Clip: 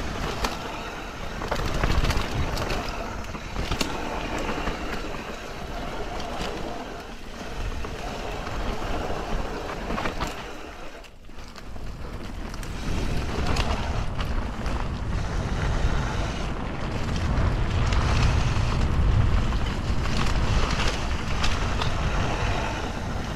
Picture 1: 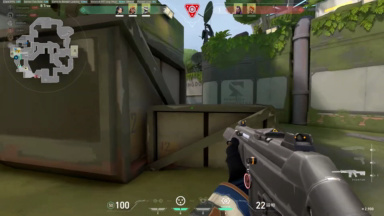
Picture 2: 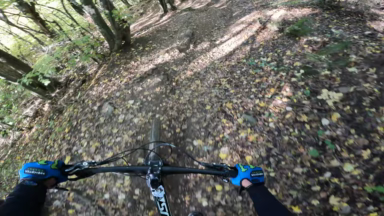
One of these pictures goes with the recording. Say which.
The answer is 2